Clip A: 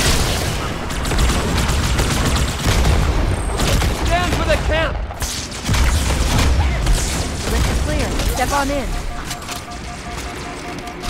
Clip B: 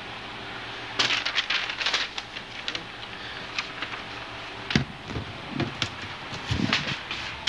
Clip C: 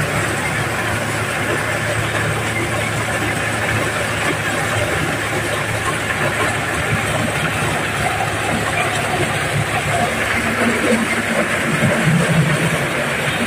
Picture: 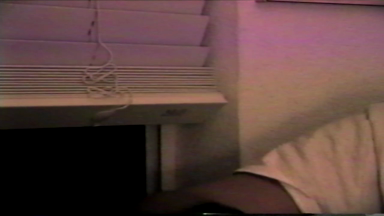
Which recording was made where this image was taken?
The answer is B